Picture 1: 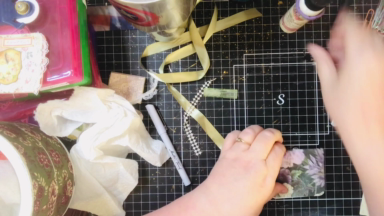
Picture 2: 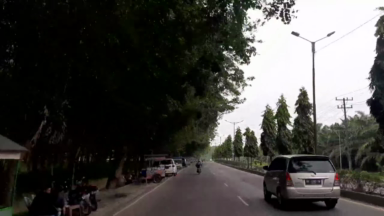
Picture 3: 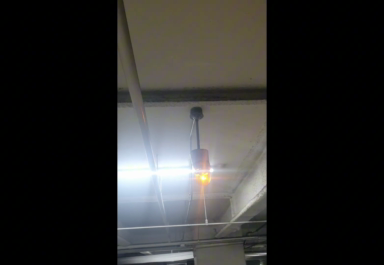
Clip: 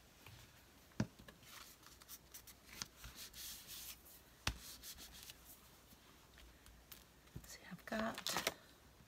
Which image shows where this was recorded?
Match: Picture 1